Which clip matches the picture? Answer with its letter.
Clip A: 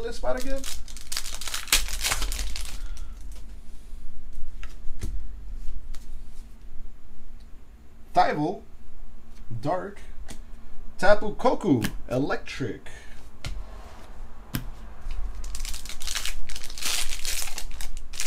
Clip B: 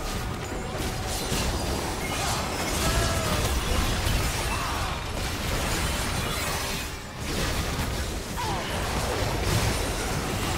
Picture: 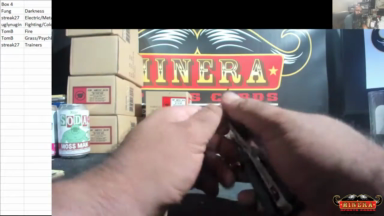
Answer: A